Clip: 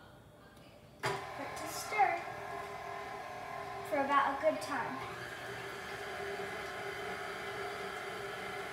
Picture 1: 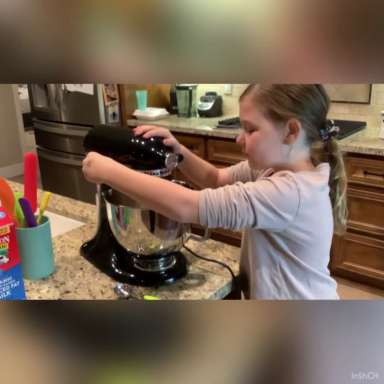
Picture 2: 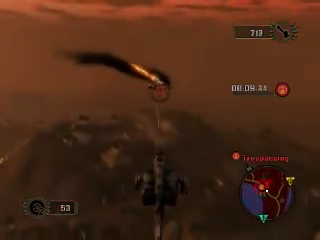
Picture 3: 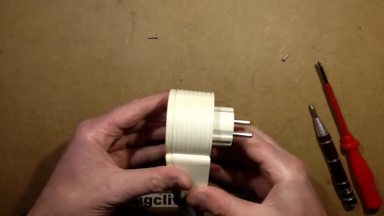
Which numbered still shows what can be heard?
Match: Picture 1